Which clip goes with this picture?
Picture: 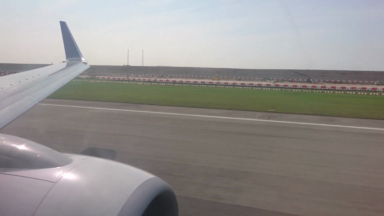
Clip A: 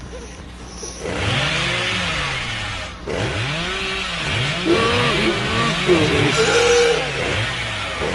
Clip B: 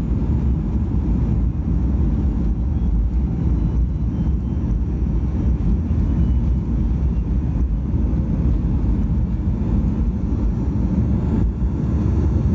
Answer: B